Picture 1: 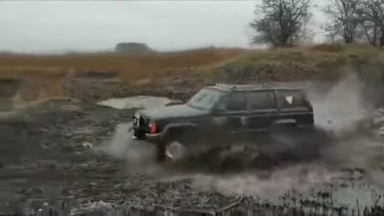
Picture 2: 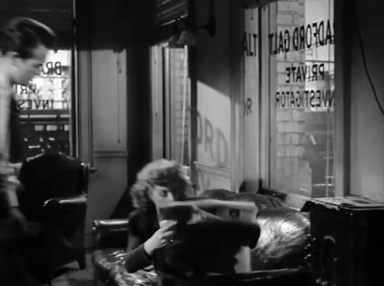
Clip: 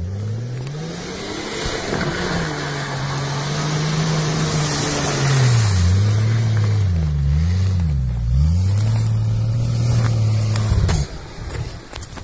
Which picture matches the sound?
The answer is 1